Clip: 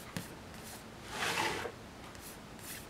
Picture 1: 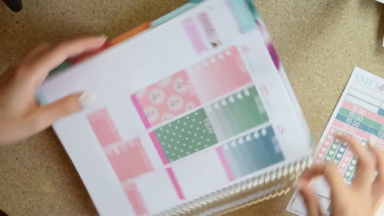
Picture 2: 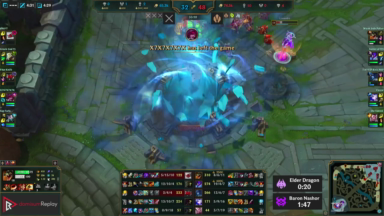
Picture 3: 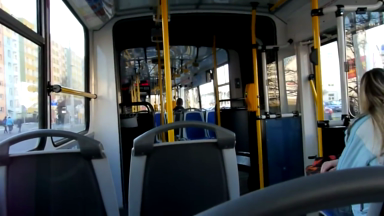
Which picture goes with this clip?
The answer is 1